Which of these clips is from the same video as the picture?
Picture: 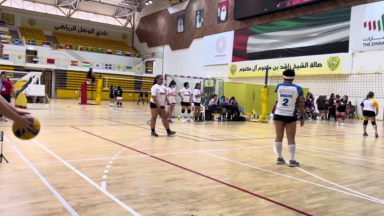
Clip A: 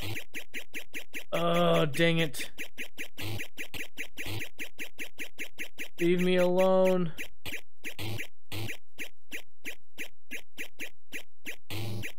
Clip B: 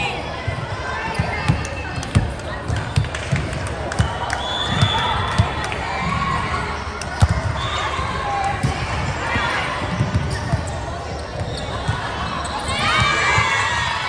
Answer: B